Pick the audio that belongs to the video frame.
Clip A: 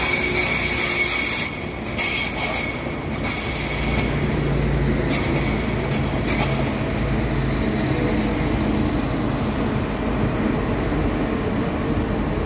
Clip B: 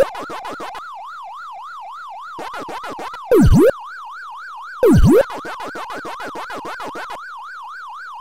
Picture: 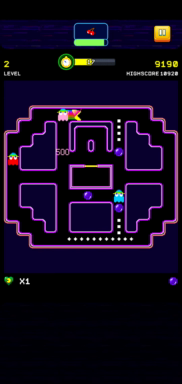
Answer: B